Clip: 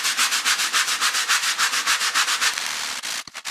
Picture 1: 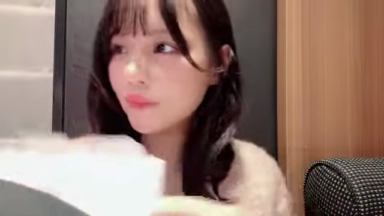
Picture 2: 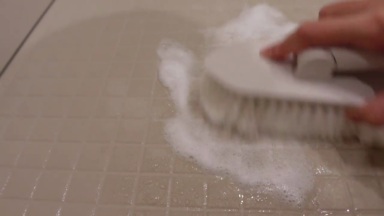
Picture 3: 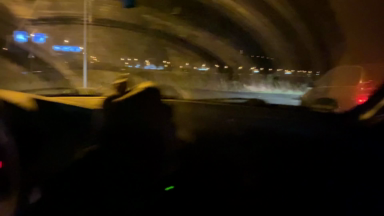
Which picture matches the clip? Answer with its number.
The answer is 2